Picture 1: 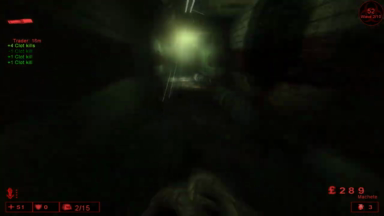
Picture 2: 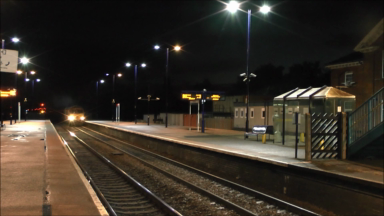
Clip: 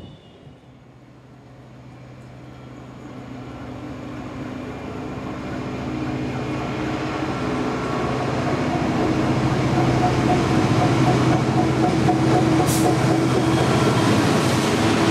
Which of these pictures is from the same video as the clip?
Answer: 2